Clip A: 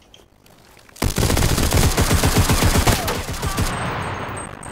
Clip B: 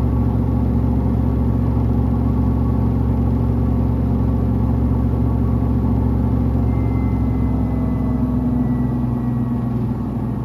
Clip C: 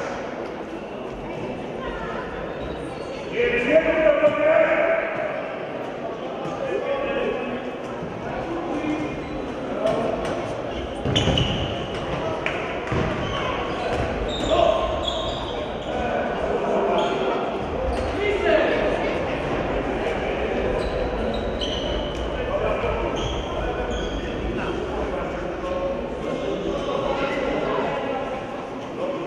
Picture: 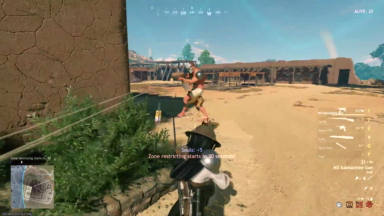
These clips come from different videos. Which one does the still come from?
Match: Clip A